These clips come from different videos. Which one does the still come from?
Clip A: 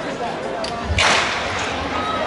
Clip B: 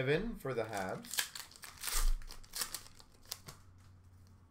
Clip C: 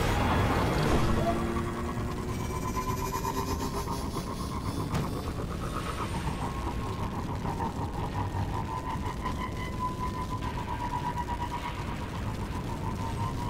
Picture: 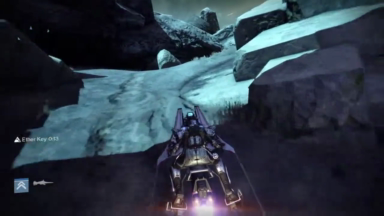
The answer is C